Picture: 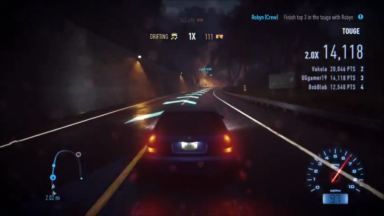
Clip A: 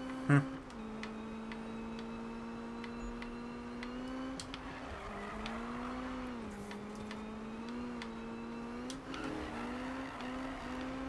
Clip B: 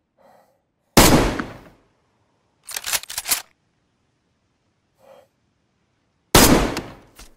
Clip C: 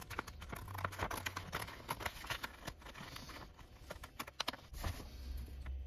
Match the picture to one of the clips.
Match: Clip A